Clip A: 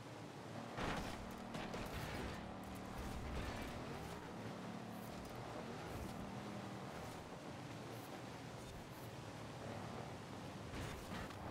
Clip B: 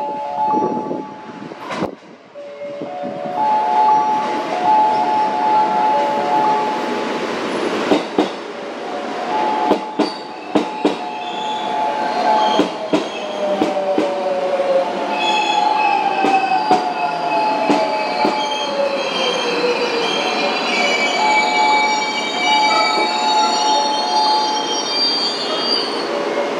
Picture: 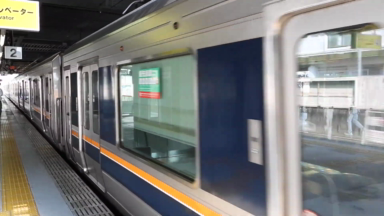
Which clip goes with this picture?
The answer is B